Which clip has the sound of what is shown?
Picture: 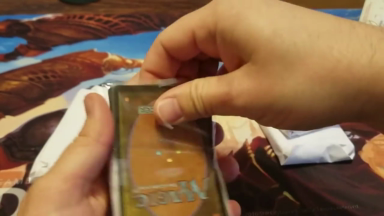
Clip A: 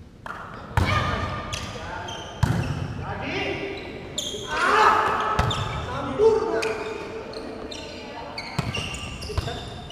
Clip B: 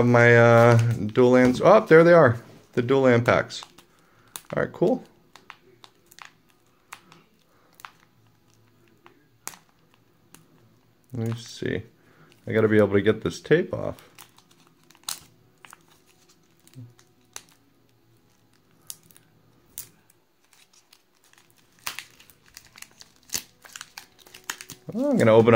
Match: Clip B